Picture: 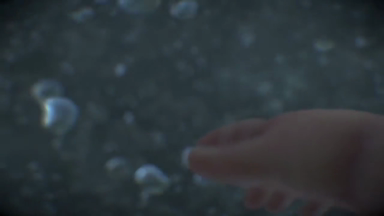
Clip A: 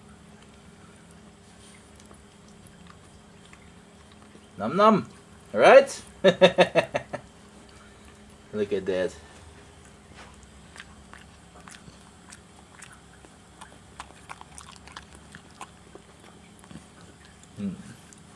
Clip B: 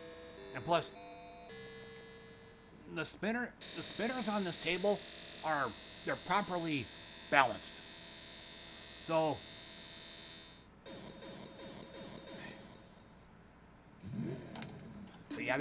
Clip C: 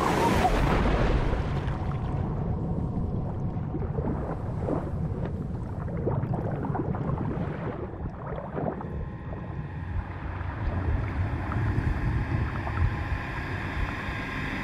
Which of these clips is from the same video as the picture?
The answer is C